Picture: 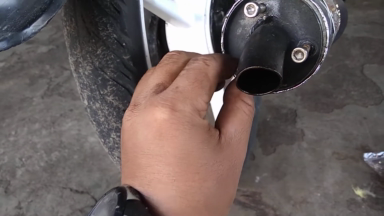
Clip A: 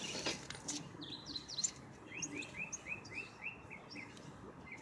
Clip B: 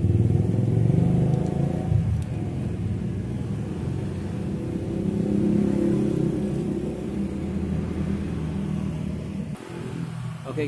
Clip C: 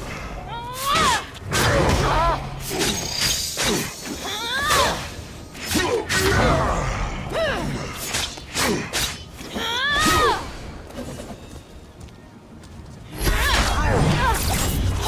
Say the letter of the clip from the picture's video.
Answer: B